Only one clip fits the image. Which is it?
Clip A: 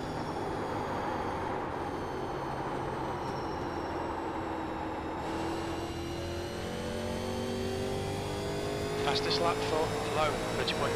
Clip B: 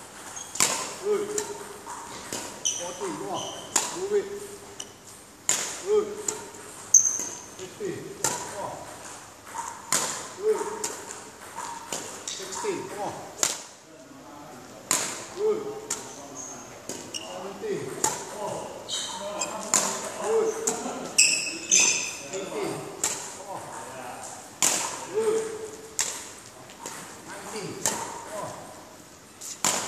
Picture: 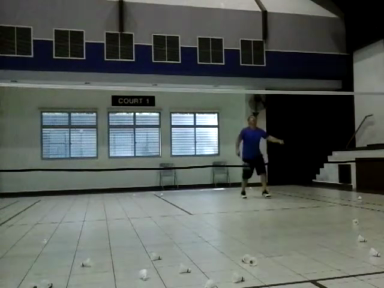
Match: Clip B